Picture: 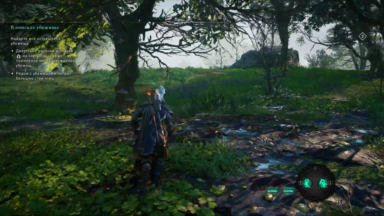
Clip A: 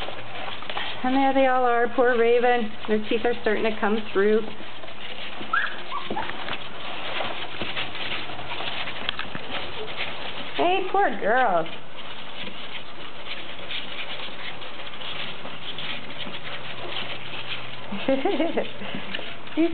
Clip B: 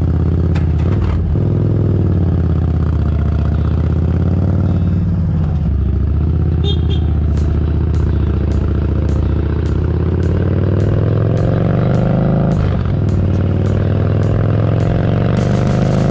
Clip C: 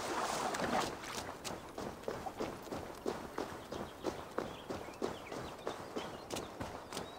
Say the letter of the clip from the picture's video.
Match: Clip C